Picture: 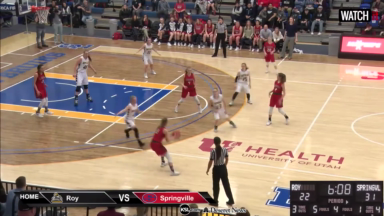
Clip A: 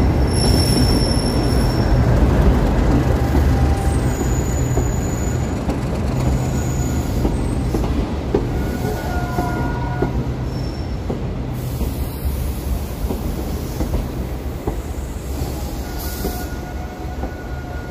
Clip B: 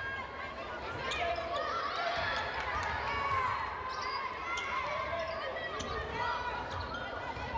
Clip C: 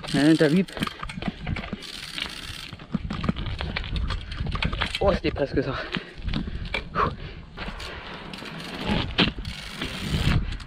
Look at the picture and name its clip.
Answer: B